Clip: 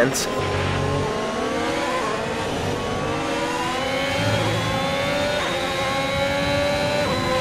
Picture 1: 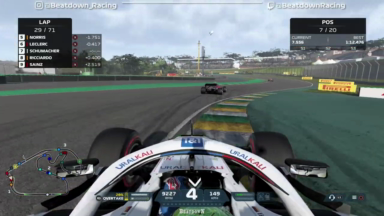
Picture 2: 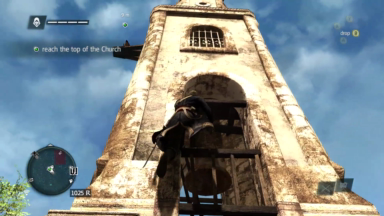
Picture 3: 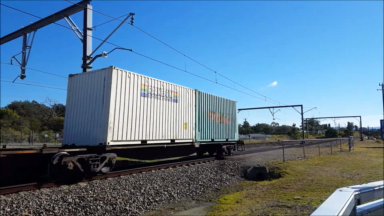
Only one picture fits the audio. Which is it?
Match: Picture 1